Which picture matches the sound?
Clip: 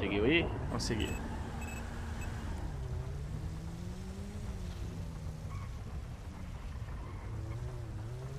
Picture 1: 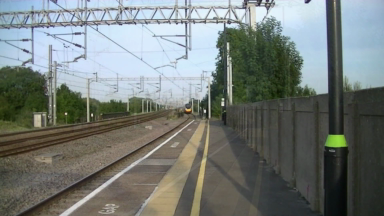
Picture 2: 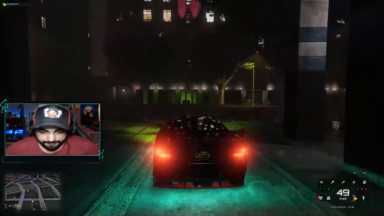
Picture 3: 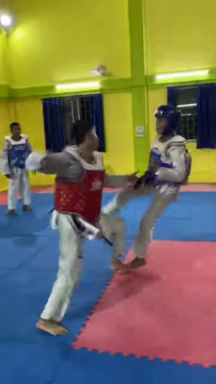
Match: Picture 2